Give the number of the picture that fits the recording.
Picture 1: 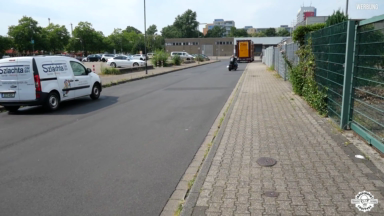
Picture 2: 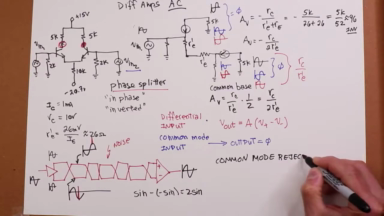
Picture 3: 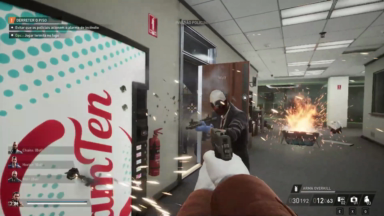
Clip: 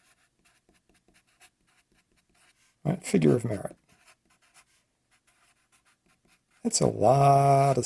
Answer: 2